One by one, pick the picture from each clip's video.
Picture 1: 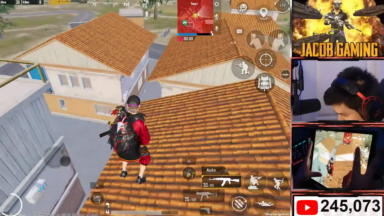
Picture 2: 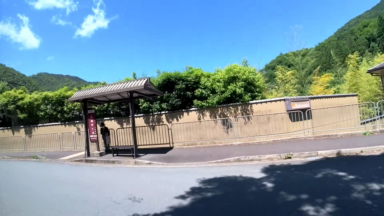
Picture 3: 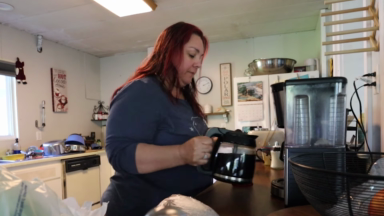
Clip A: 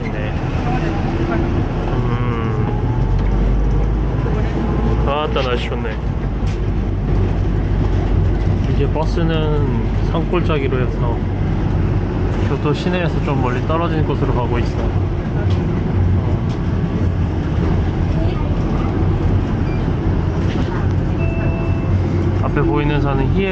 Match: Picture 2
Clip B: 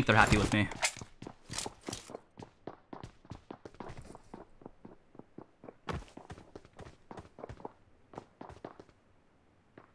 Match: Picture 1